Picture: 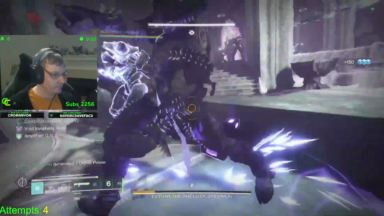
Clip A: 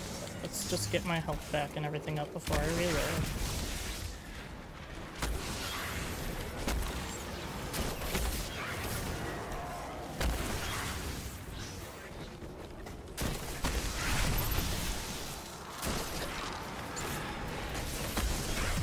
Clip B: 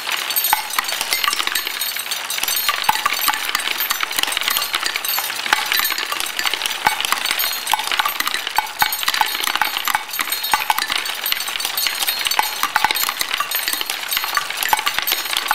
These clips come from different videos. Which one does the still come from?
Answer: A